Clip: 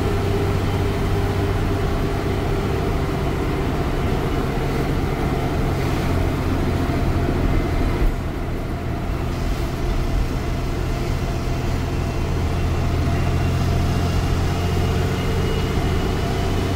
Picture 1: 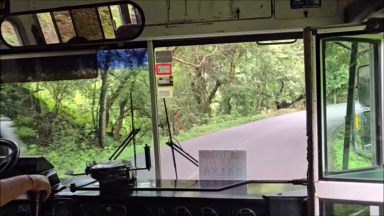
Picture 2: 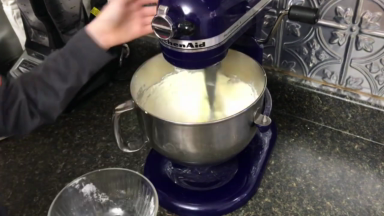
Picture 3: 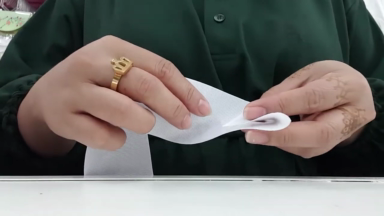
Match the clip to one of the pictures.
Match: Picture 1